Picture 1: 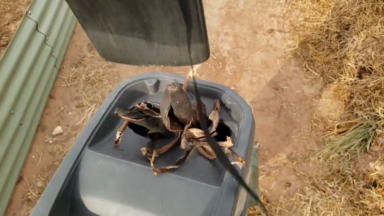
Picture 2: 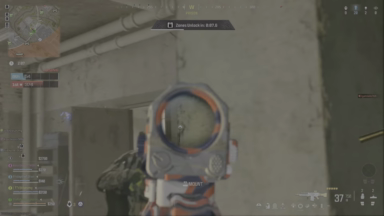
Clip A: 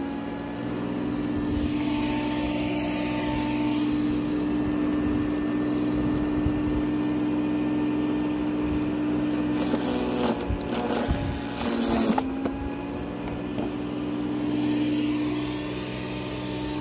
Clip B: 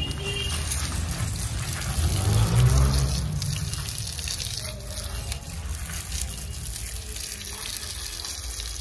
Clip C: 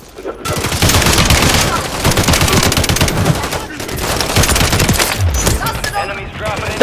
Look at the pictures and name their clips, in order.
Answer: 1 A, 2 C